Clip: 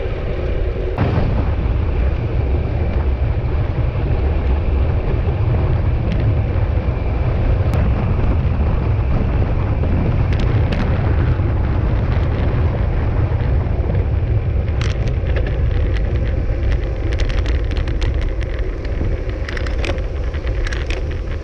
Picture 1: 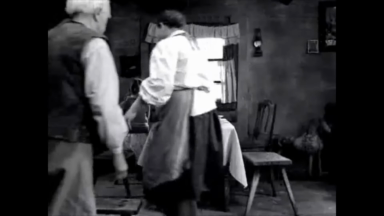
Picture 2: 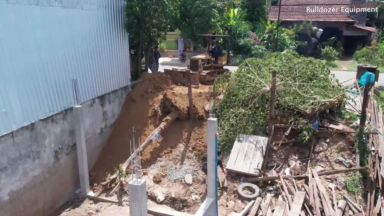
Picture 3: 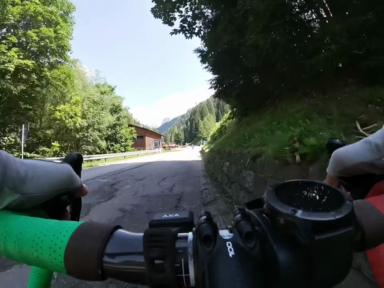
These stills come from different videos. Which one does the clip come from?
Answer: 3